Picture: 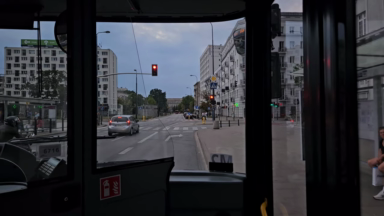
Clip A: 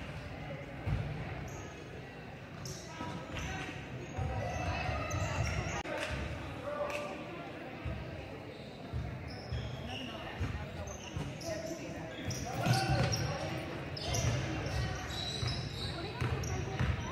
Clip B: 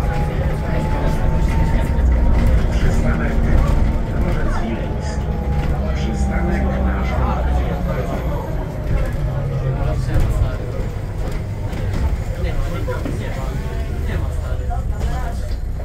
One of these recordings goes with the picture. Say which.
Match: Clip B